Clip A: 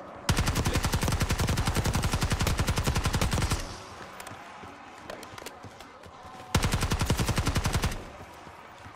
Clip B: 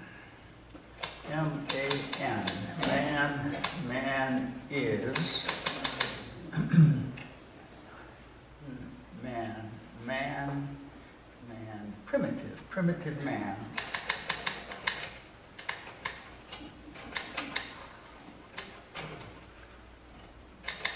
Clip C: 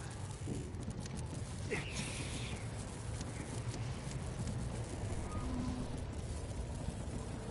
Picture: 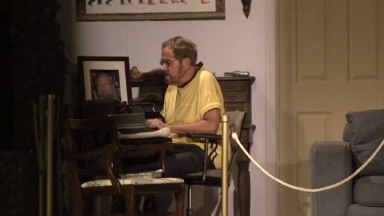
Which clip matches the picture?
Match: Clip B